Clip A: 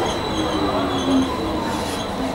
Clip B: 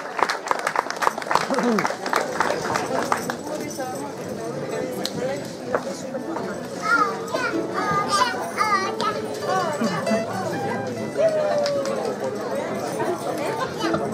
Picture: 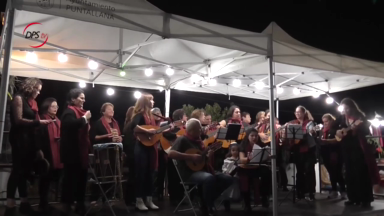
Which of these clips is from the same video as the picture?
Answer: B